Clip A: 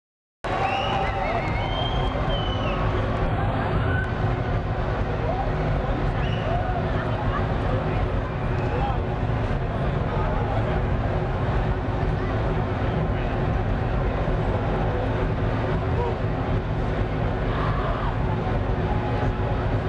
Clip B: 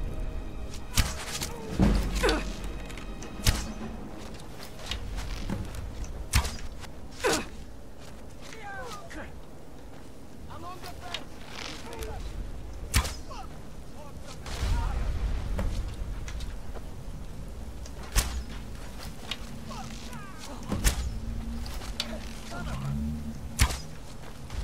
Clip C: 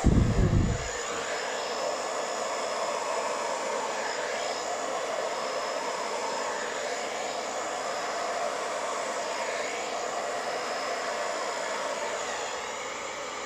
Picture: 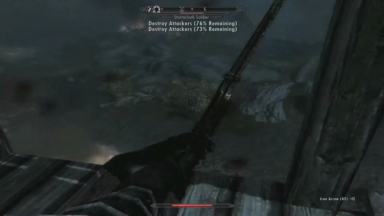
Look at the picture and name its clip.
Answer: B